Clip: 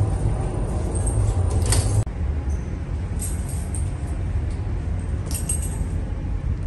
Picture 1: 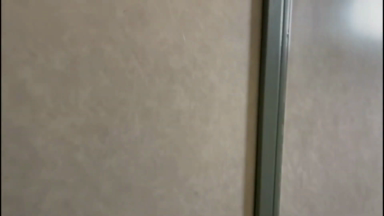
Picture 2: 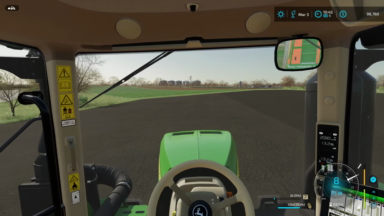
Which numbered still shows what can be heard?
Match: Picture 1